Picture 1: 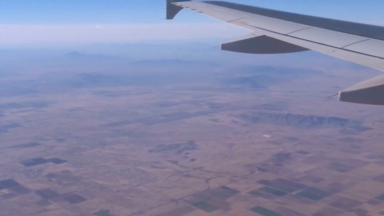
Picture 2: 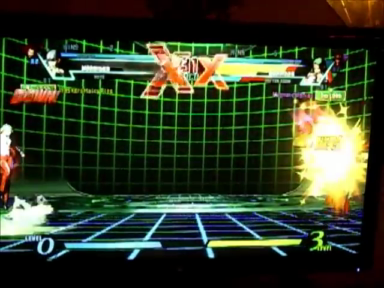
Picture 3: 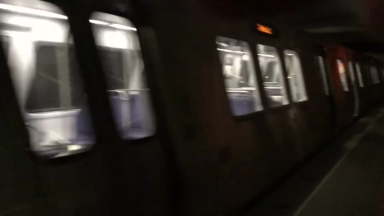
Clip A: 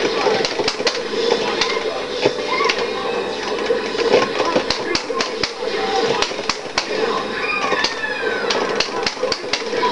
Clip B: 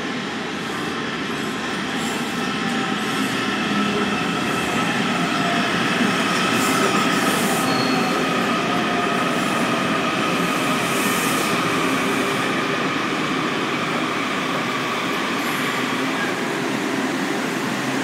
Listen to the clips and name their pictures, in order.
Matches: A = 2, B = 3